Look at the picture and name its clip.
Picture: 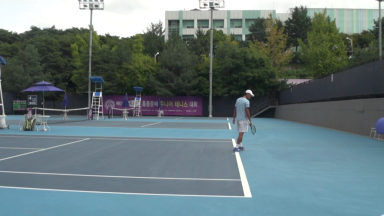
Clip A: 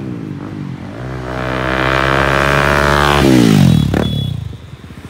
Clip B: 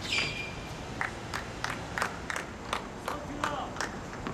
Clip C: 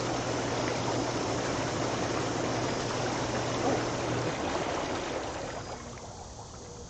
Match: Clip B